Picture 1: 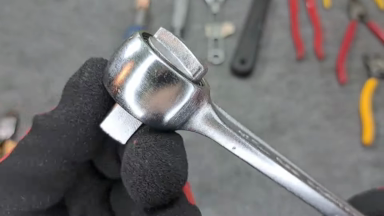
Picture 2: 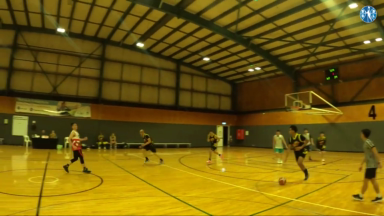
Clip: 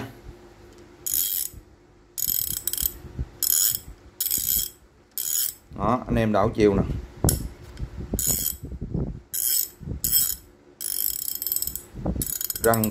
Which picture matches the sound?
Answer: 1